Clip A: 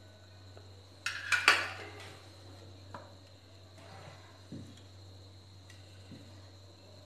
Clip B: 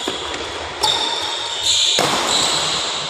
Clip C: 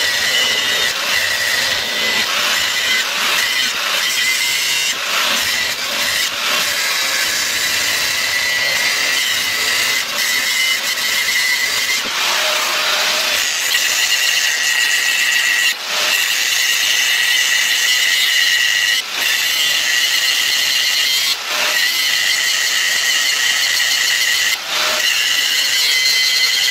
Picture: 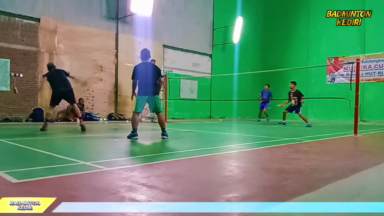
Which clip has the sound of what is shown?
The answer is B